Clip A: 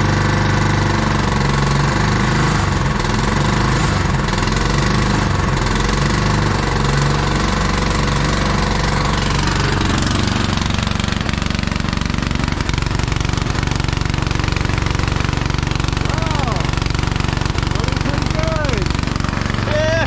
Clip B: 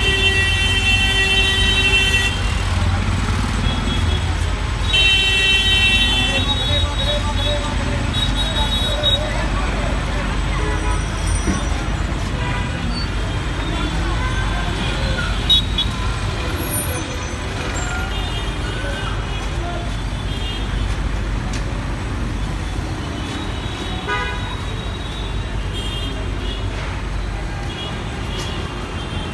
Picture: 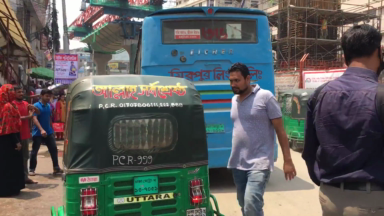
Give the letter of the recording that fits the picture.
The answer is B